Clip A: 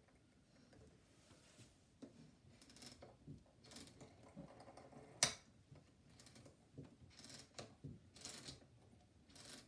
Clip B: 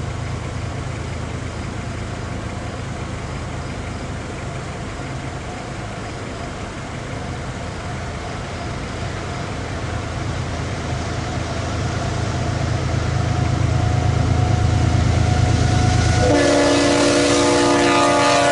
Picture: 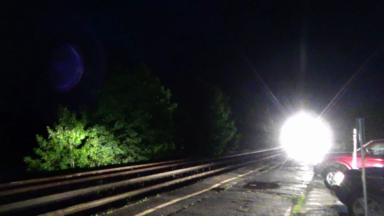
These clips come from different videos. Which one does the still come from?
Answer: B